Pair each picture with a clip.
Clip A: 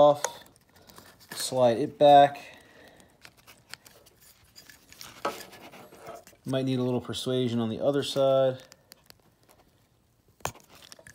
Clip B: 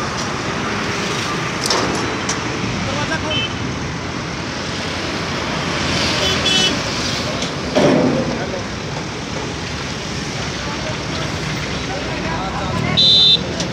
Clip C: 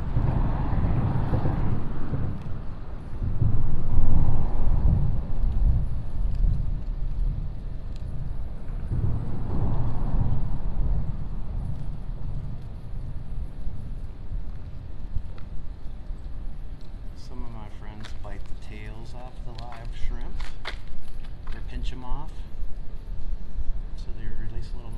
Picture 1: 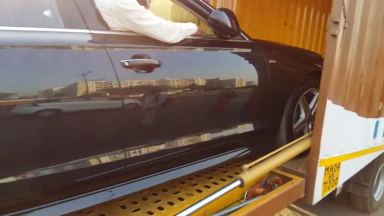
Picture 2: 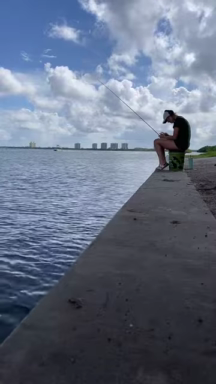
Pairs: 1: B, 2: C